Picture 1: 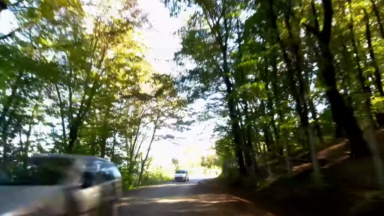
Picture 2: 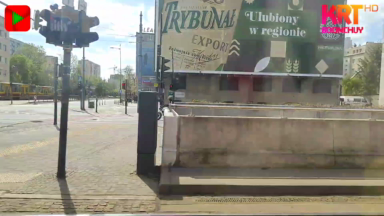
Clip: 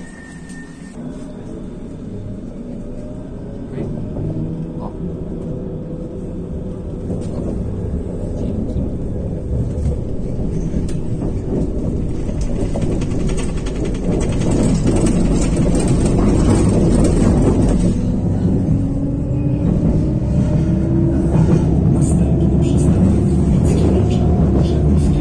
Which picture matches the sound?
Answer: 2